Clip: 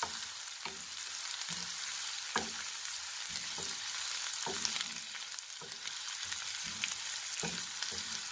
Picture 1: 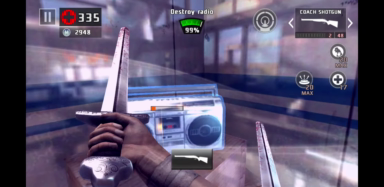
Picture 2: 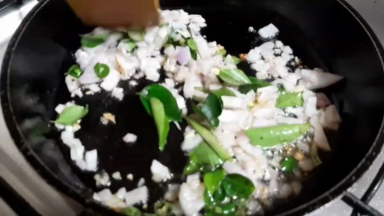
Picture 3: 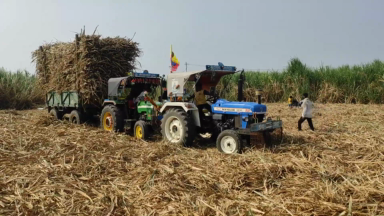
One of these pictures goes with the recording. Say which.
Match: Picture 2